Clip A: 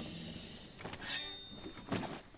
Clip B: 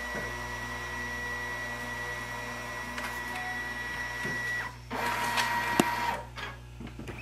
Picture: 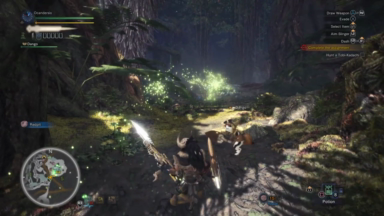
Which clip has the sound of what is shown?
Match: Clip A